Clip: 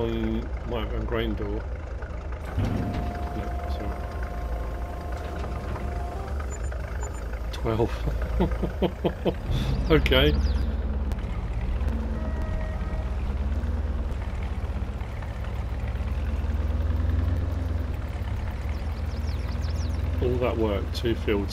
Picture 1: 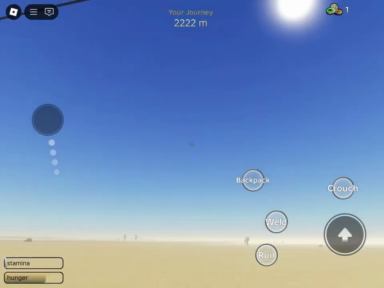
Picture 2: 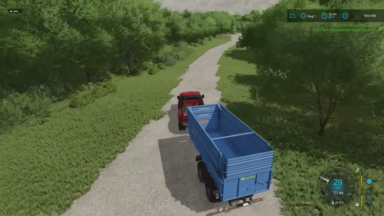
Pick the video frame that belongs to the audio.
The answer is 2